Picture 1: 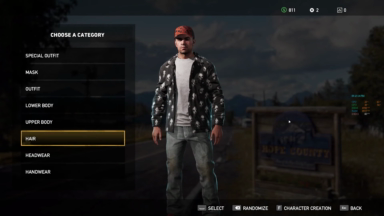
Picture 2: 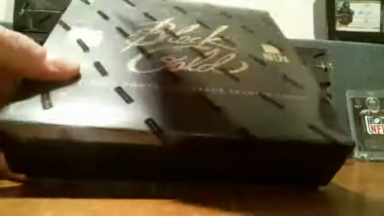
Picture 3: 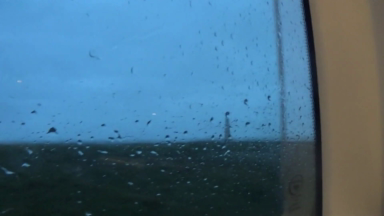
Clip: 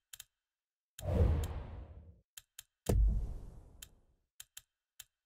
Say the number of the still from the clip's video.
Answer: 1